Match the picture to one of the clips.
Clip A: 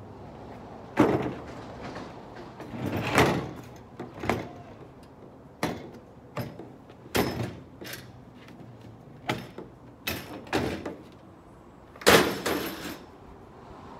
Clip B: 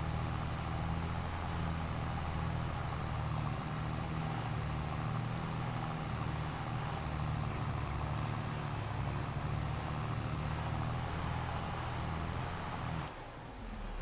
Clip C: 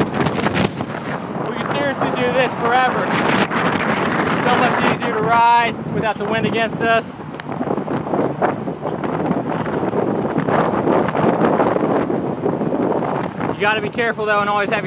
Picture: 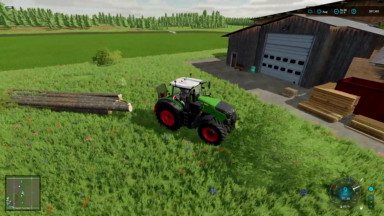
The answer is B